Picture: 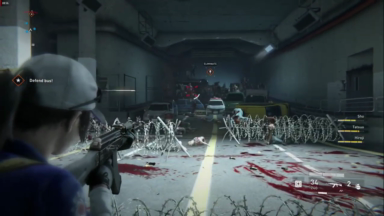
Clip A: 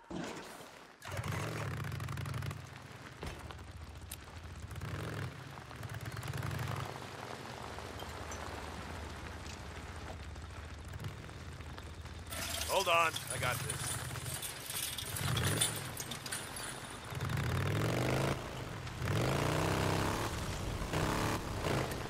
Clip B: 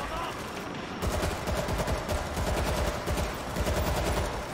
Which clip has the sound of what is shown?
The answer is B